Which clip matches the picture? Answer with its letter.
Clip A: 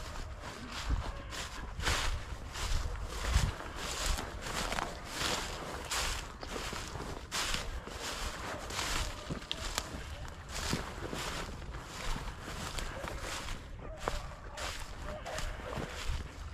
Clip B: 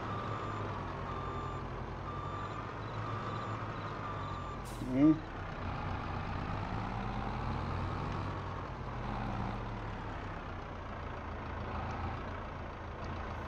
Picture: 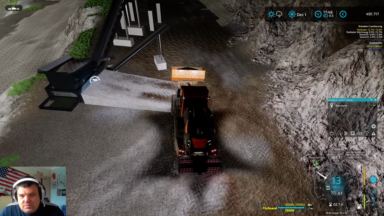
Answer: B